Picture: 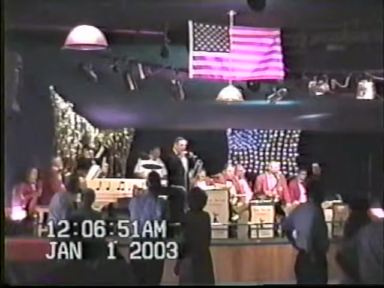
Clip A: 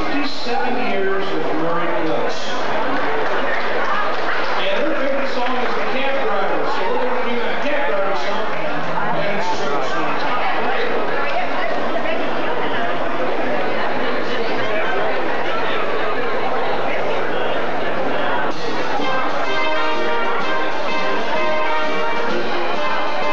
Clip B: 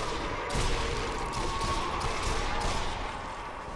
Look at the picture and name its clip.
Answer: A